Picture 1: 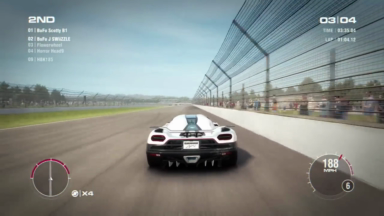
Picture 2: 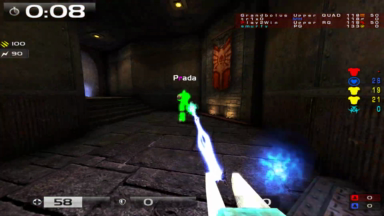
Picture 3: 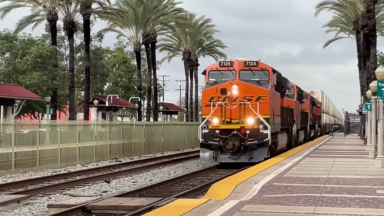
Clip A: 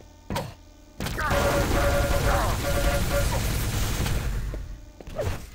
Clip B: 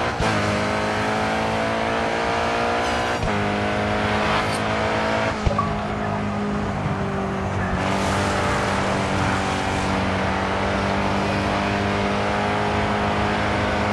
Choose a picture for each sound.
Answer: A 2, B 1